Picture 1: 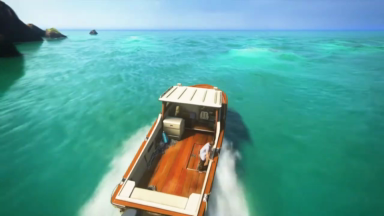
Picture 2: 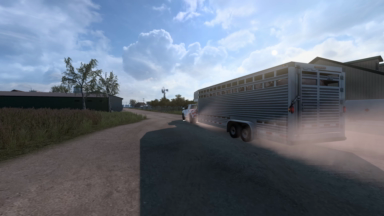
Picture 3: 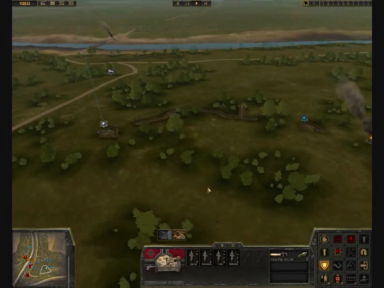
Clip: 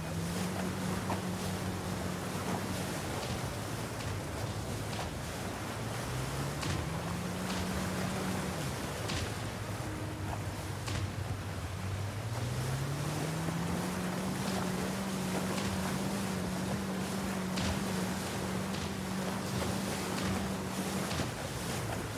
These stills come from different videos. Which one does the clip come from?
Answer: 1